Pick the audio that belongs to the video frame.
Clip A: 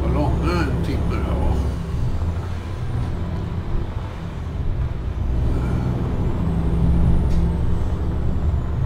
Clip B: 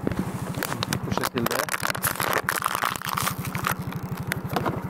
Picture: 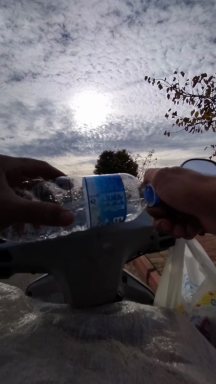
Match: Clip B